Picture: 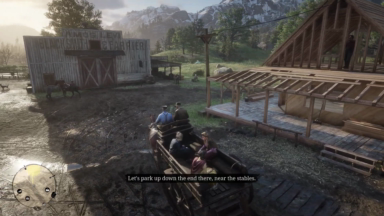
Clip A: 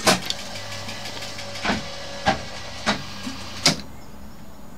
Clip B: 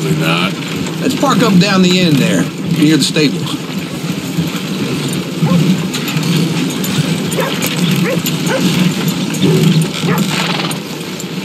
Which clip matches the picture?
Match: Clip B